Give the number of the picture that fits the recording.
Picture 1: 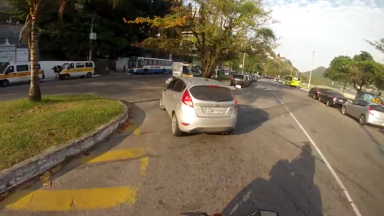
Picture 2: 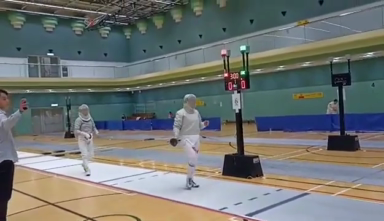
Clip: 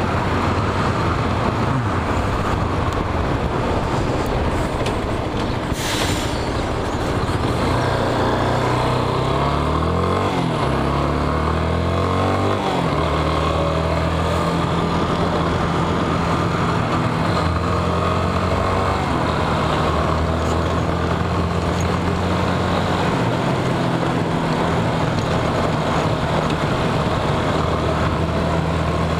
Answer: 1